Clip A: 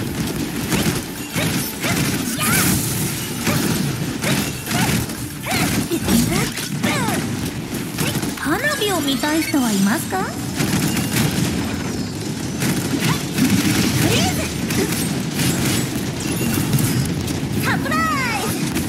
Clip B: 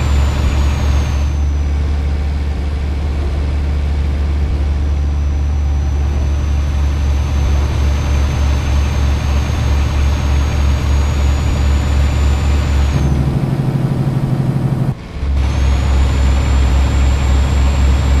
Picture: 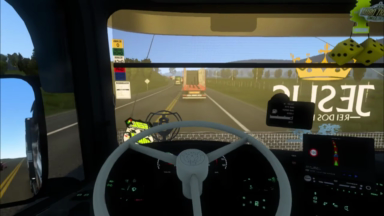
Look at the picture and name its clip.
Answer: B